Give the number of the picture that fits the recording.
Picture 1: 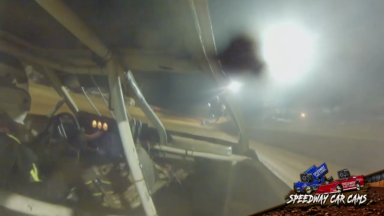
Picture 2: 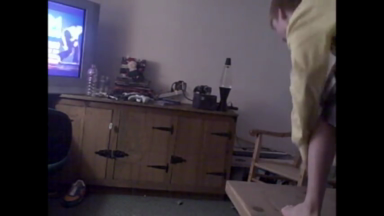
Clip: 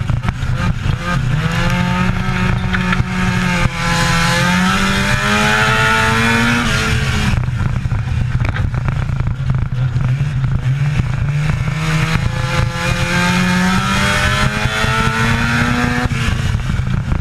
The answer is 1